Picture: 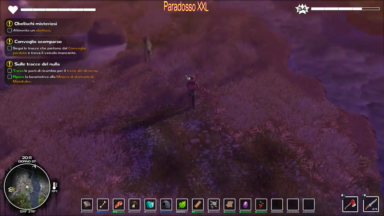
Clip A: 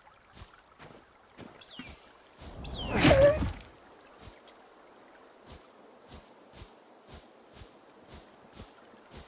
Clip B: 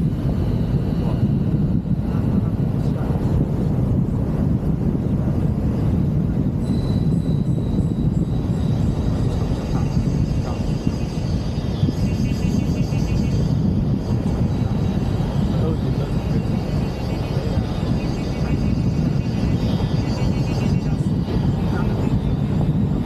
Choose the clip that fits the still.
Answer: A